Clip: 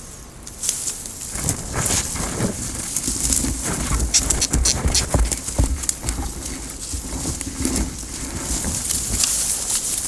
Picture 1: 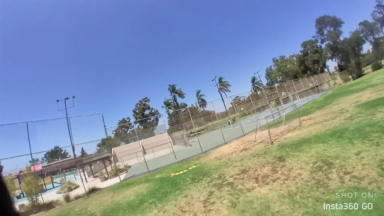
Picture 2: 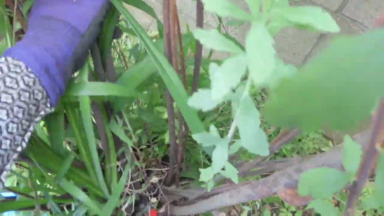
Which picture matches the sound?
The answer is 2